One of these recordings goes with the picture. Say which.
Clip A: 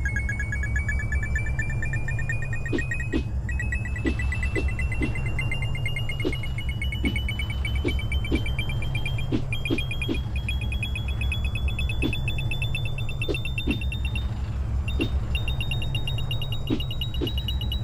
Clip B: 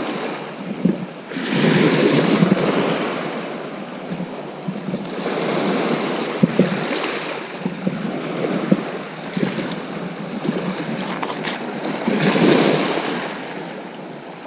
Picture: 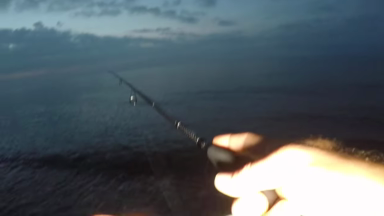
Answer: B